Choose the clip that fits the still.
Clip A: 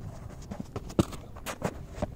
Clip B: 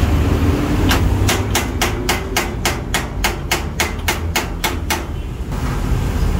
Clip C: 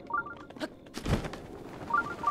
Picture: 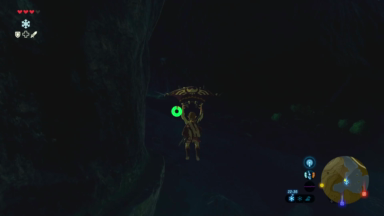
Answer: C